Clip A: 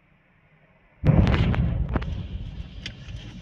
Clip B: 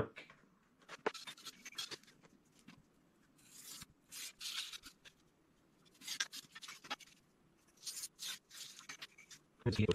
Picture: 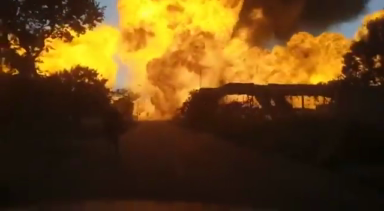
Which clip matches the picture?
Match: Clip A